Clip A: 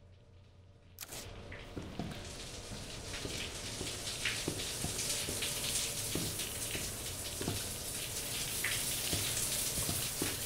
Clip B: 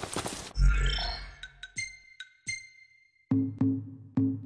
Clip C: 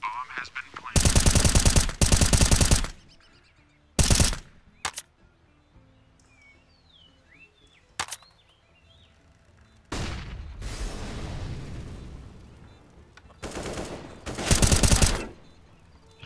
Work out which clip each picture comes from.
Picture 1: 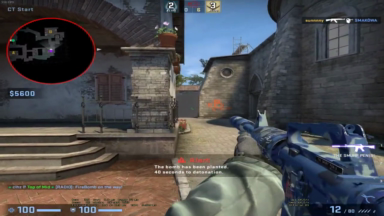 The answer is C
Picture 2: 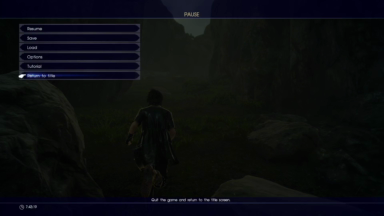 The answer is B